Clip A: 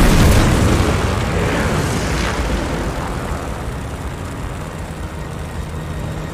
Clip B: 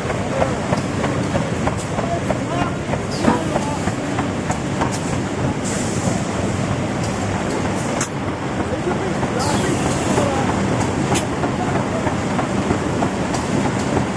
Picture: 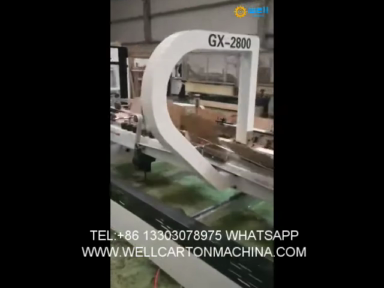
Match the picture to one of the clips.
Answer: B